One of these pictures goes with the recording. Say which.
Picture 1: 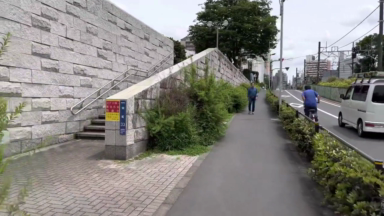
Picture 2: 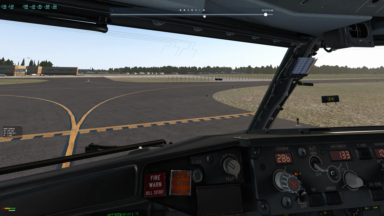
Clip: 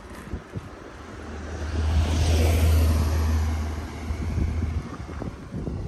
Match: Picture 1